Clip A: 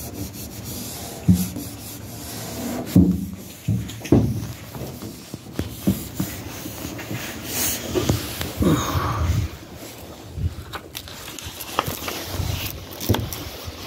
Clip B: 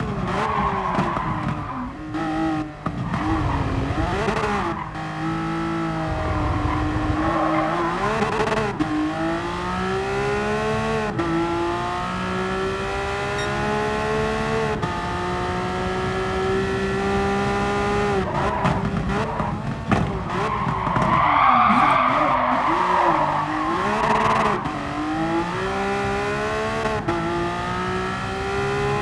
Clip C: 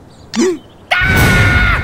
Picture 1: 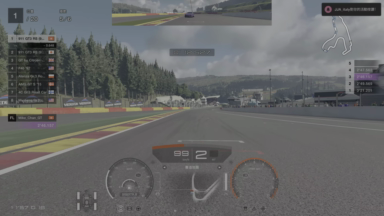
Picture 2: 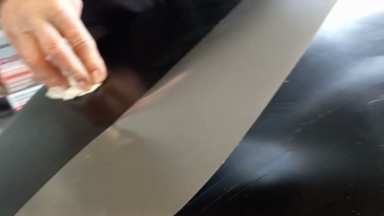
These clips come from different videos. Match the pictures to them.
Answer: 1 B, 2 A